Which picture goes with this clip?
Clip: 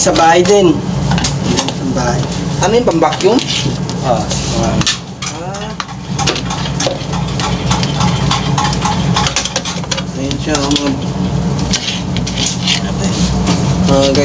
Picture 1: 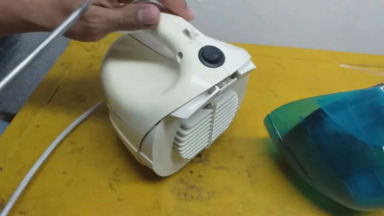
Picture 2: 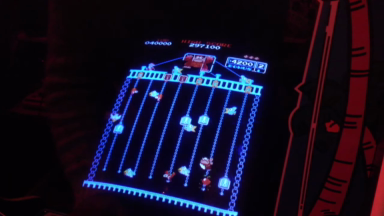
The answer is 1